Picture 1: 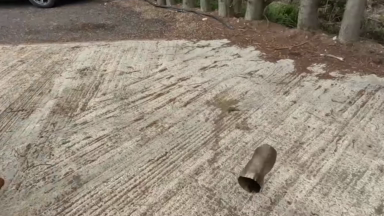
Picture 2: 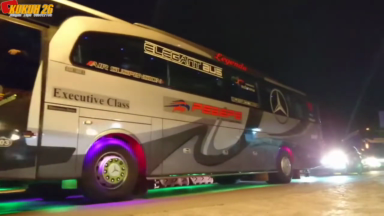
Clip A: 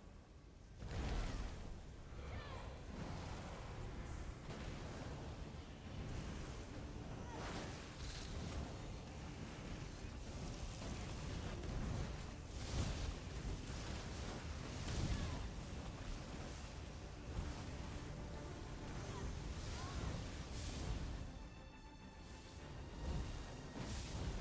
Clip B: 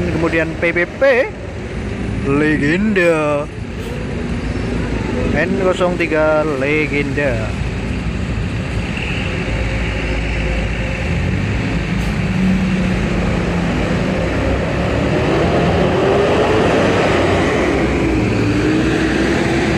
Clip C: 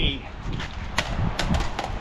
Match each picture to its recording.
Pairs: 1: C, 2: B